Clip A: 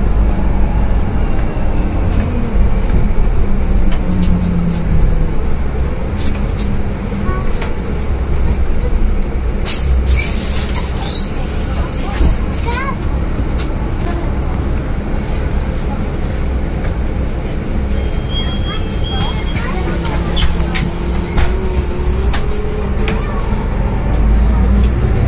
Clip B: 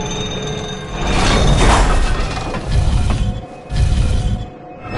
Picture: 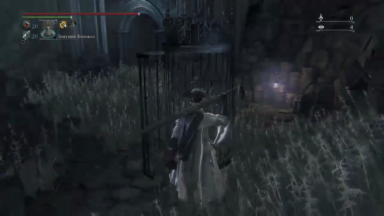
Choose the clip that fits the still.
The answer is B